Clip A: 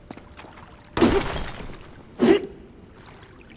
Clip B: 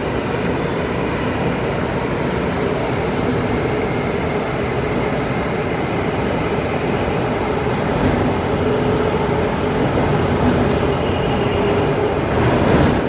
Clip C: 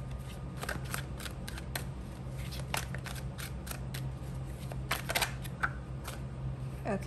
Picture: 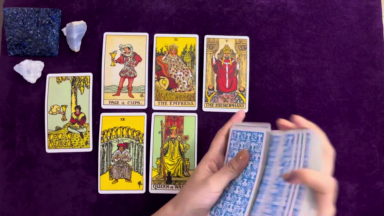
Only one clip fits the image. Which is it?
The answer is C